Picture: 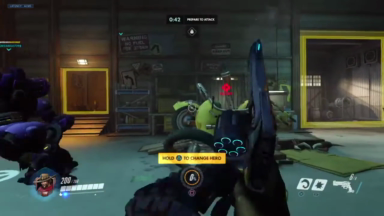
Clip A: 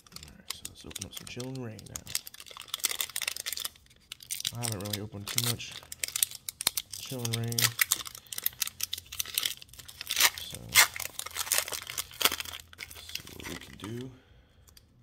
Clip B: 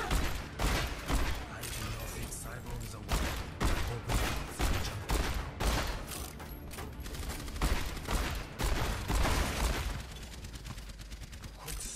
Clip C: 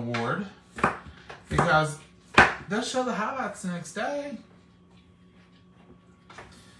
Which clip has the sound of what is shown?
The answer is B